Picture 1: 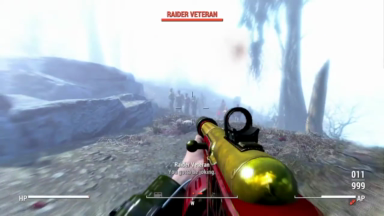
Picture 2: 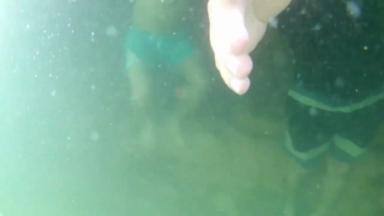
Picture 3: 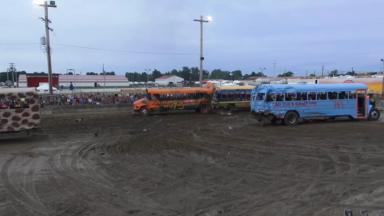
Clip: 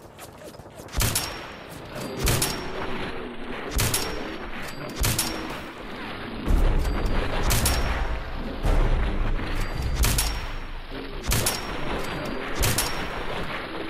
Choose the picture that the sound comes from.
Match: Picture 1